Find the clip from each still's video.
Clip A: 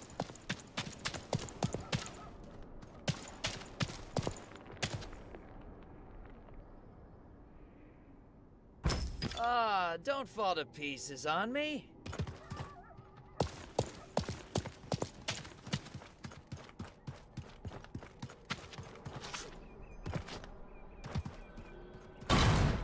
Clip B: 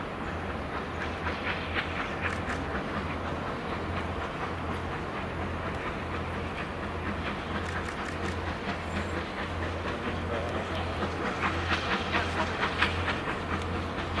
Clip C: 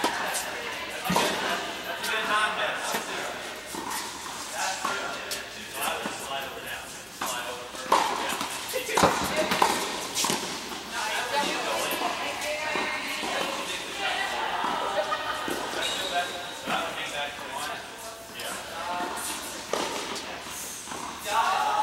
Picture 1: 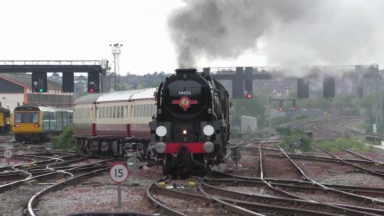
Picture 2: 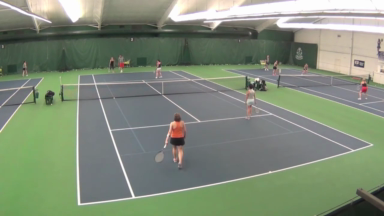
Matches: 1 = B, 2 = C